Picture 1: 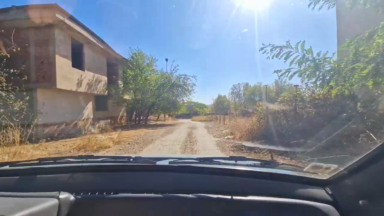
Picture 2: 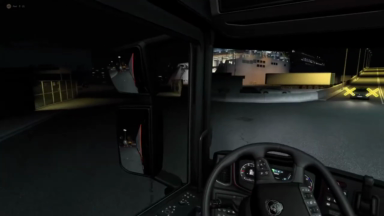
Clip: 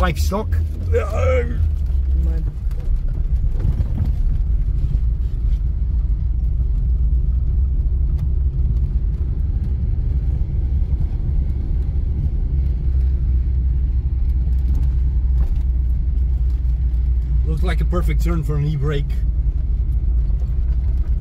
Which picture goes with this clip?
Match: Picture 1